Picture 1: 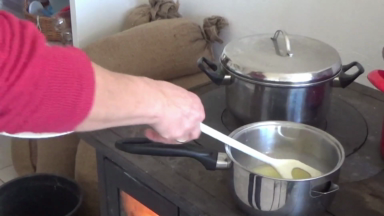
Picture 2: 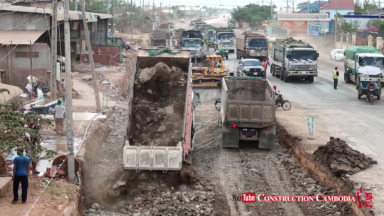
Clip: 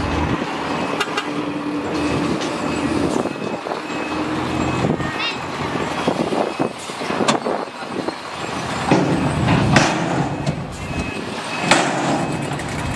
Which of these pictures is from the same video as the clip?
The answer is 2